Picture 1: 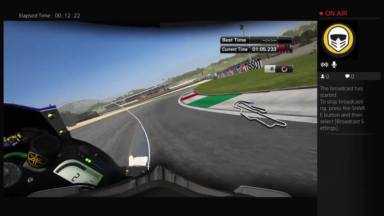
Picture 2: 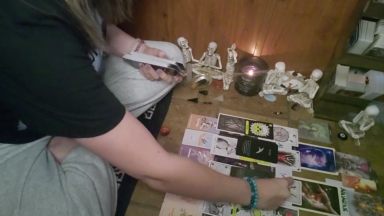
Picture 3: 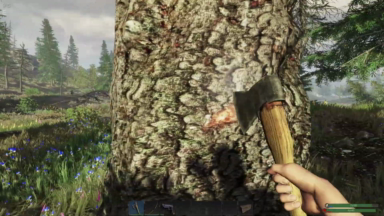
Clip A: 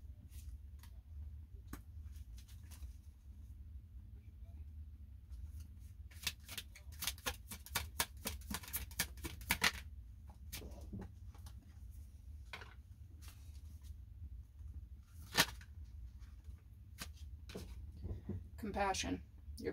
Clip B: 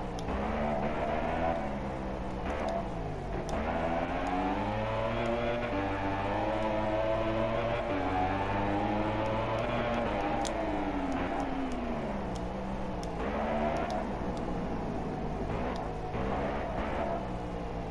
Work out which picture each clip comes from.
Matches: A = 2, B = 1